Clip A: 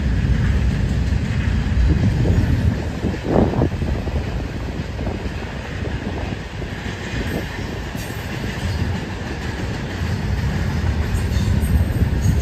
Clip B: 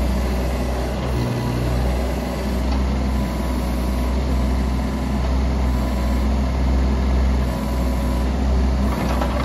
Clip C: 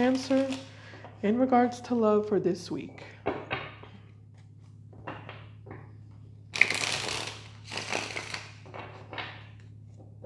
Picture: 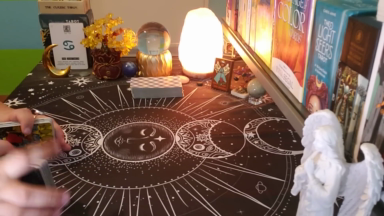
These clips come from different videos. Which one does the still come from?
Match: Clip C